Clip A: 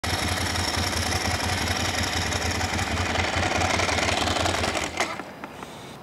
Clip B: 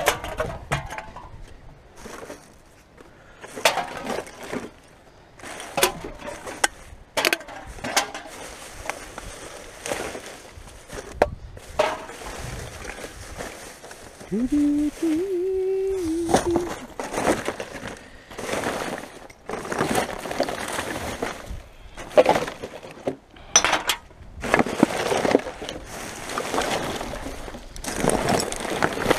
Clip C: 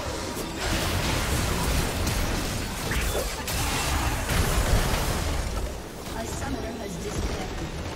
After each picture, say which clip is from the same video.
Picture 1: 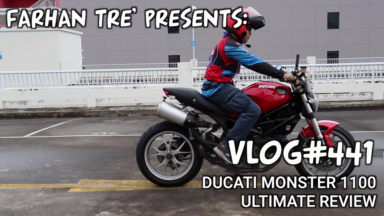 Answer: A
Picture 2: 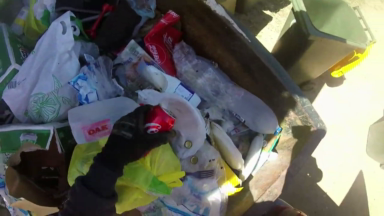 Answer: B